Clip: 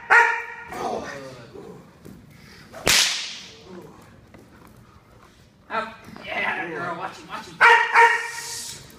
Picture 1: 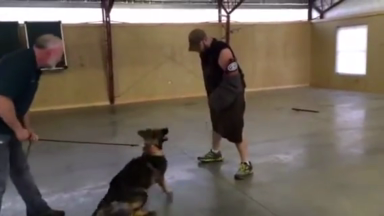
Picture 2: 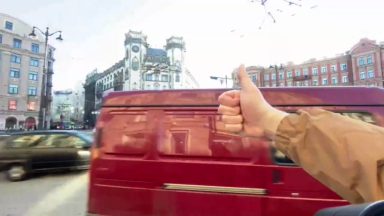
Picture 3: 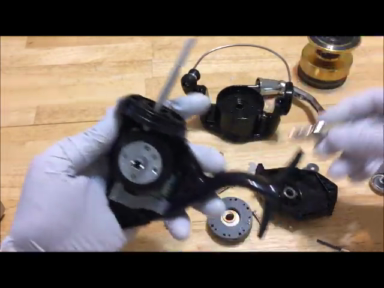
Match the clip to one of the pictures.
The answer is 1